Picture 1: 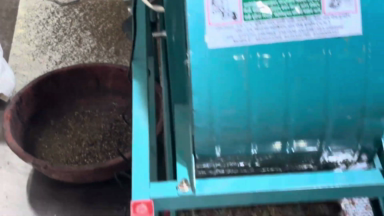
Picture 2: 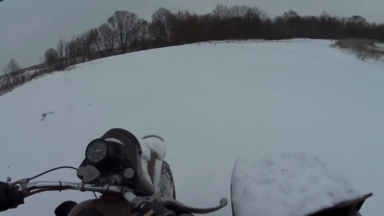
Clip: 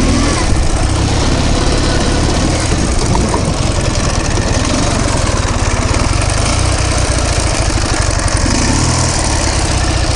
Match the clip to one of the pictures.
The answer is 2